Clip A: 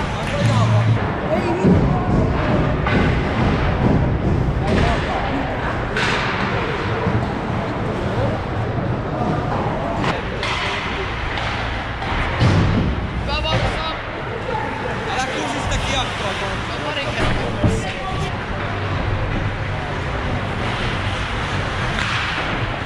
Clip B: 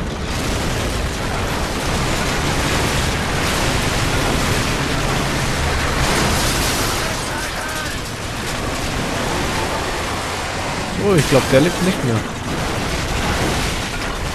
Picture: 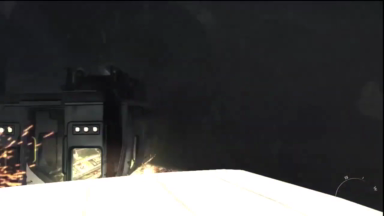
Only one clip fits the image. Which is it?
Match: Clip B